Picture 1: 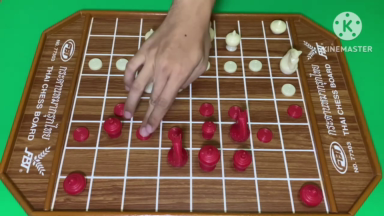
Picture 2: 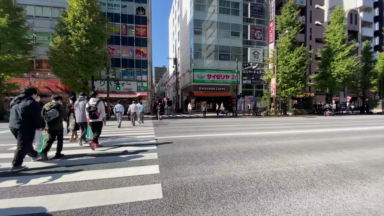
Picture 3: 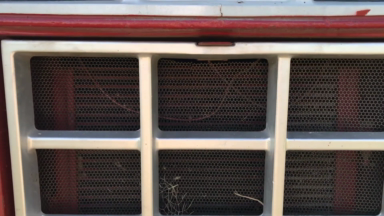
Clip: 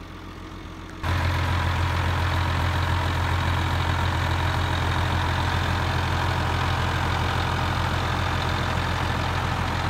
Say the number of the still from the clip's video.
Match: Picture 3